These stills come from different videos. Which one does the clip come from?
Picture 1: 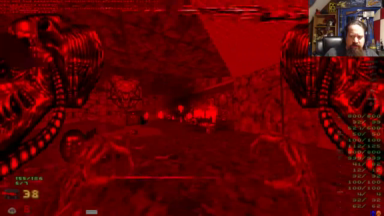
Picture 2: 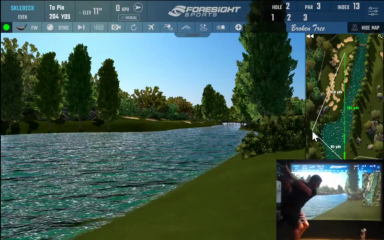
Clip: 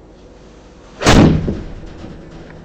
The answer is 2